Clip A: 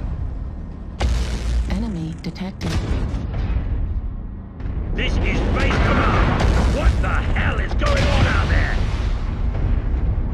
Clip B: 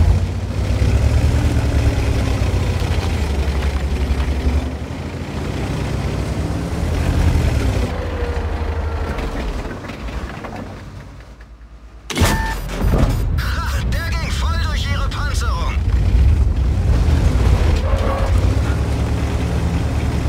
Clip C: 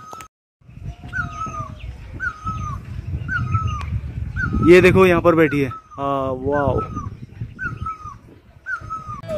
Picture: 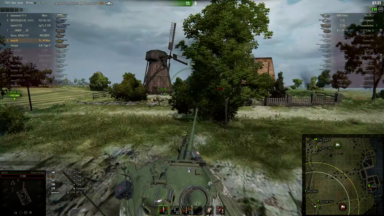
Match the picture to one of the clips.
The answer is B